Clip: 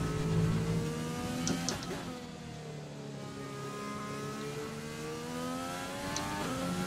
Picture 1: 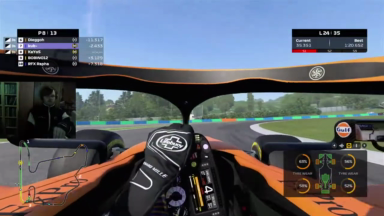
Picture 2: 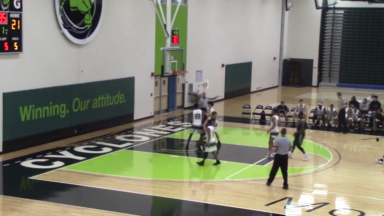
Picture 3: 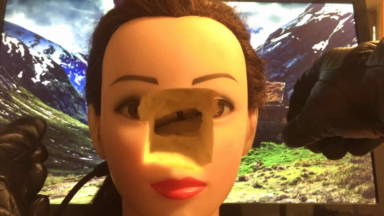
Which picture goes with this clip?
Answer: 1